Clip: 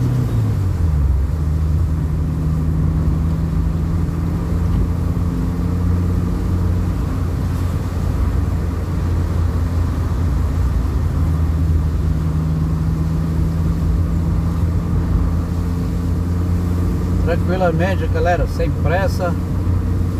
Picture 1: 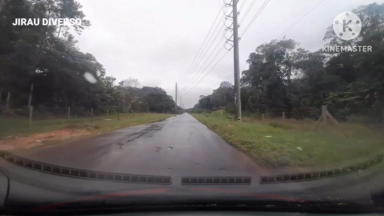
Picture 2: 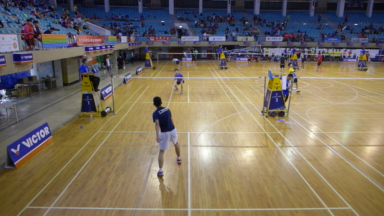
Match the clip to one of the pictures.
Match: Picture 1